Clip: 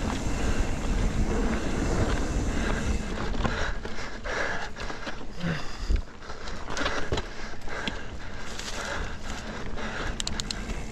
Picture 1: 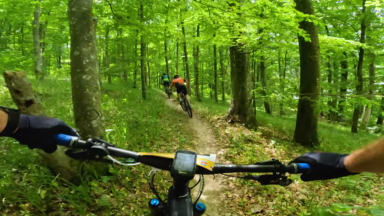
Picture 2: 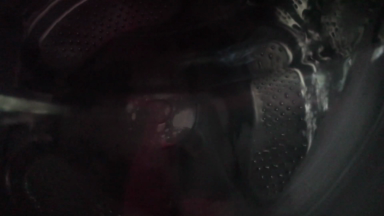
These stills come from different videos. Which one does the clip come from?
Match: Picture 1